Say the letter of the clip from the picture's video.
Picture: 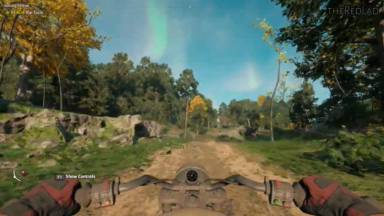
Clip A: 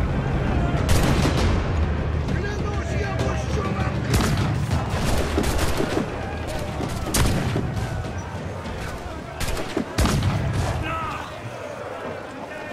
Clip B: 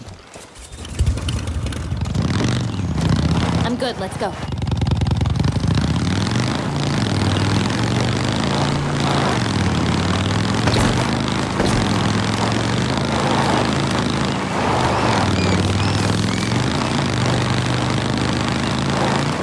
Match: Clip B